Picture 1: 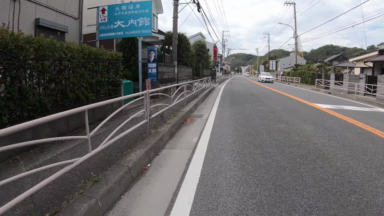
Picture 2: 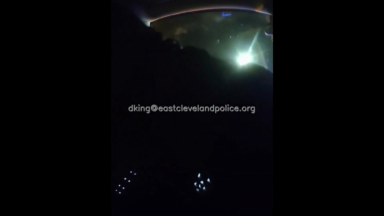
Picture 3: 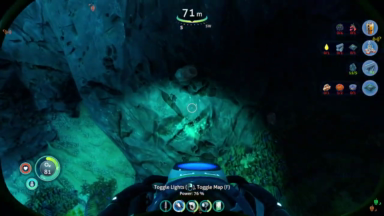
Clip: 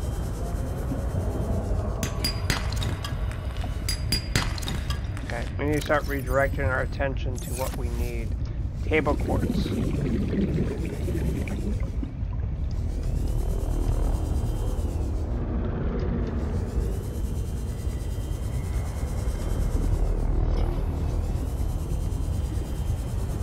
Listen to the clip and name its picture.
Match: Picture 3